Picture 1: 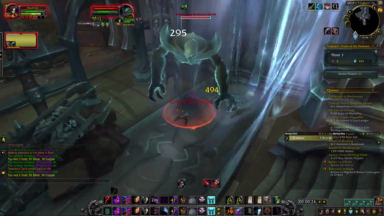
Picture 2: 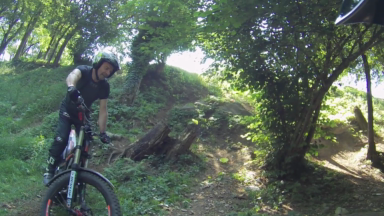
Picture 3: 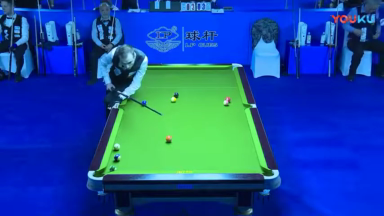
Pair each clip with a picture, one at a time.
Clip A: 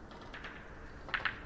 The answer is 3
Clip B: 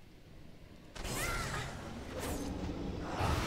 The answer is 1